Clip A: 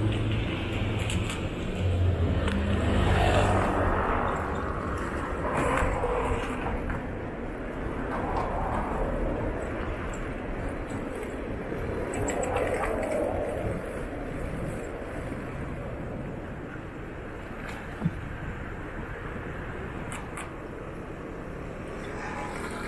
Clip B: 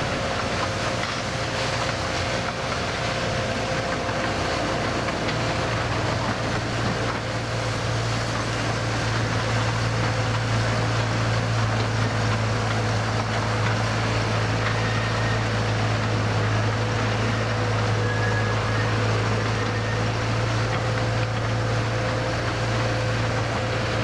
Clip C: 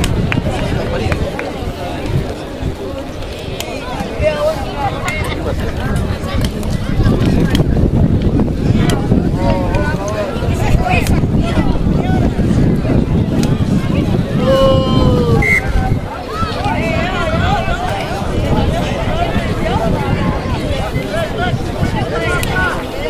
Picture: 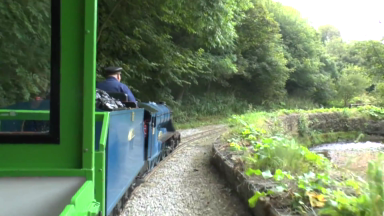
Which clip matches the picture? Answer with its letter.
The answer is B